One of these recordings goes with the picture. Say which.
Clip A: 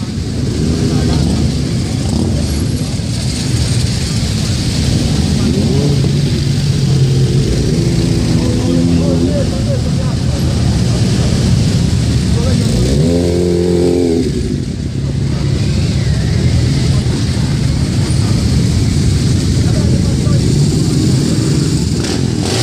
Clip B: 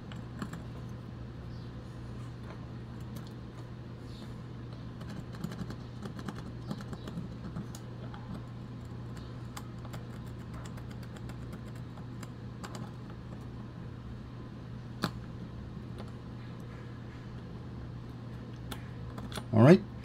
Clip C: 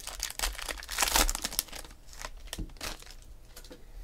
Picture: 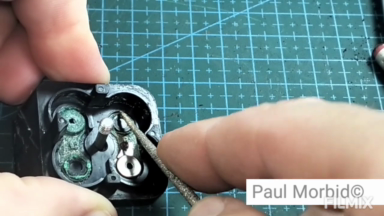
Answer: B